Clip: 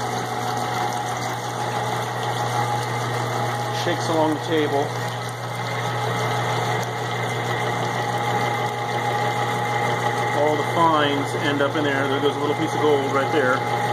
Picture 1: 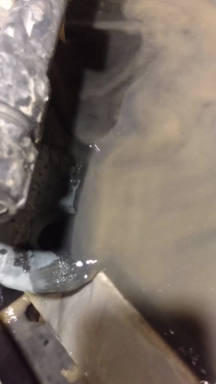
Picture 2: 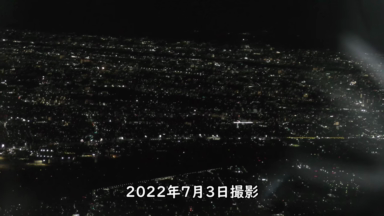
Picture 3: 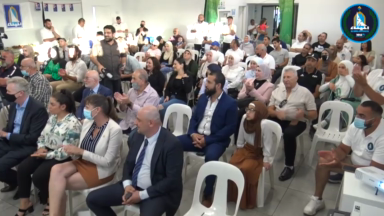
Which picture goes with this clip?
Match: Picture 1